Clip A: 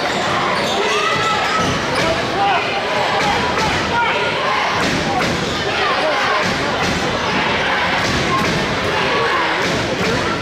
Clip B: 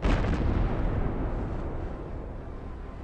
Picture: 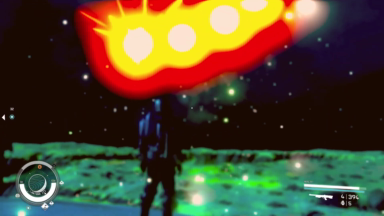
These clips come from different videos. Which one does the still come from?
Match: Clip B